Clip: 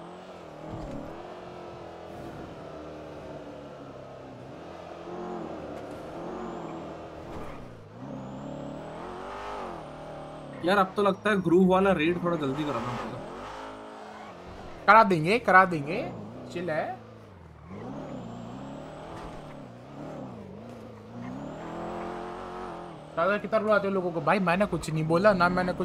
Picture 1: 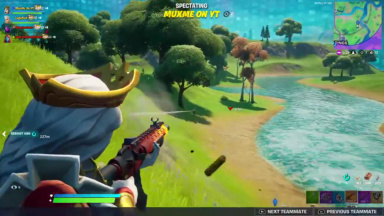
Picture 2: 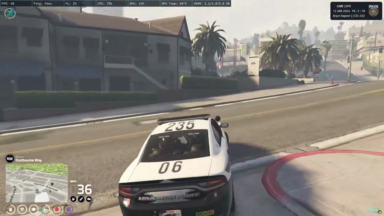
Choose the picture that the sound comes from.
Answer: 2